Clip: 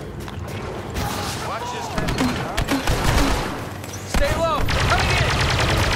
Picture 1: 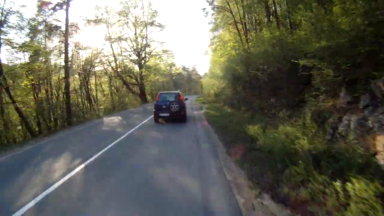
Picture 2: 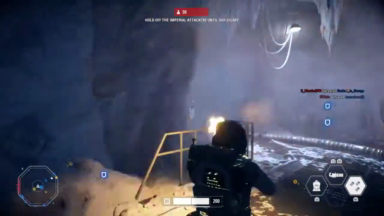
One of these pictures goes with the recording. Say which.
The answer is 2